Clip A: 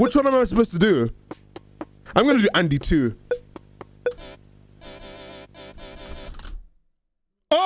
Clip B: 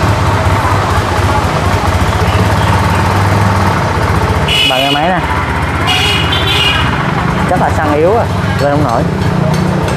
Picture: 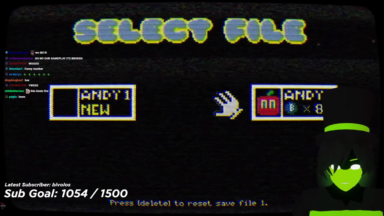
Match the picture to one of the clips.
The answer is A